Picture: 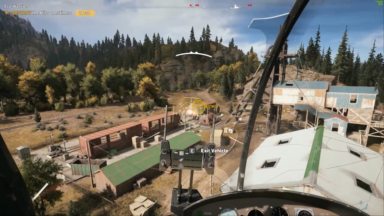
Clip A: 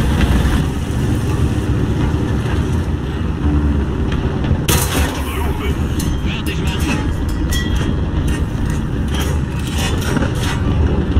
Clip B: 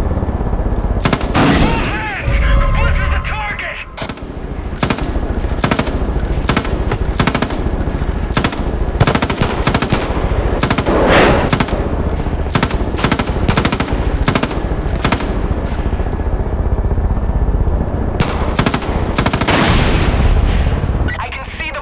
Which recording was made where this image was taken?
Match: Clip B